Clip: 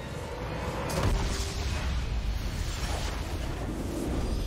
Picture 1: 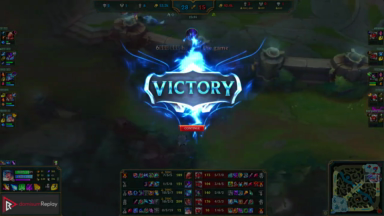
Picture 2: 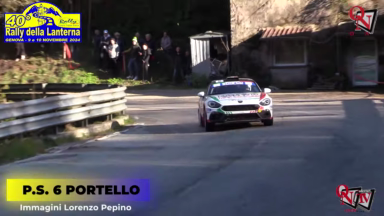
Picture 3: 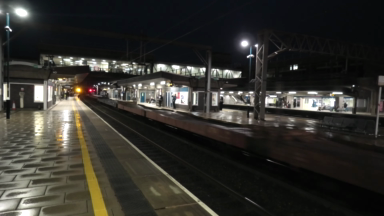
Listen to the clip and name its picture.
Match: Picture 1